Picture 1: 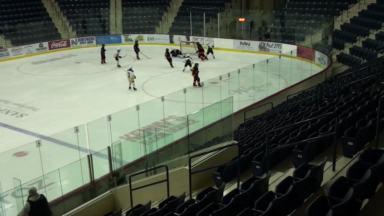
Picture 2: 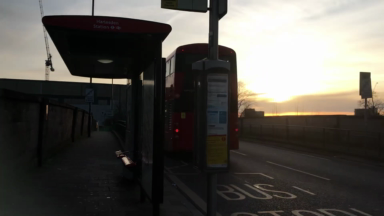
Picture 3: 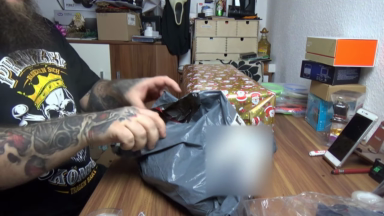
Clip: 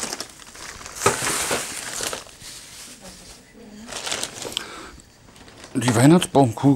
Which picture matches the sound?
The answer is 3